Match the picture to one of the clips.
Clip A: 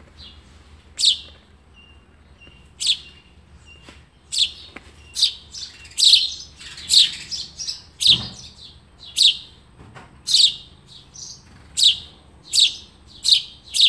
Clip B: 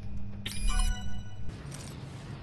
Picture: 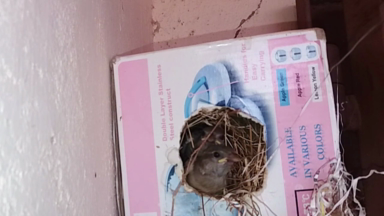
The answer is A